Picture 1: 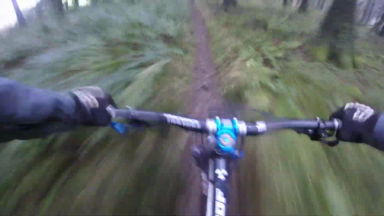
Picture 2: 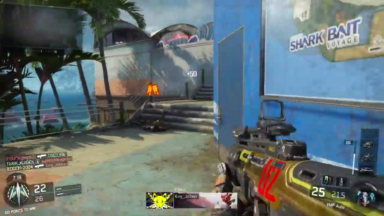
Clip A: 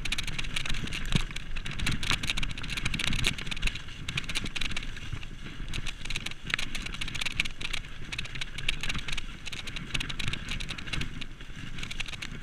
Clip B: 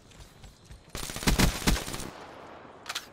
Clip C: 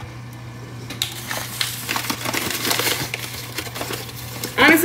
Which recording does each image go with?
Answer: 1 A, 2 B